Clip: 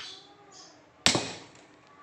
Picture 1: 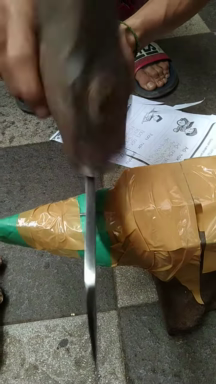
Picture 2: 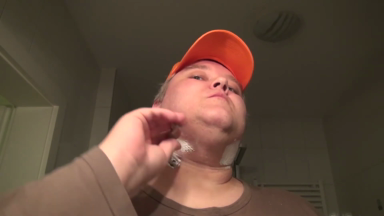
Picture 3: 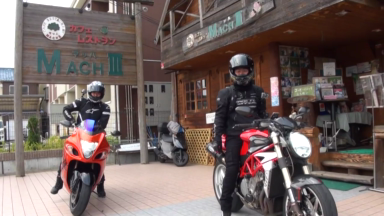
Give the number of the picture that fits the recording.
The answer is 1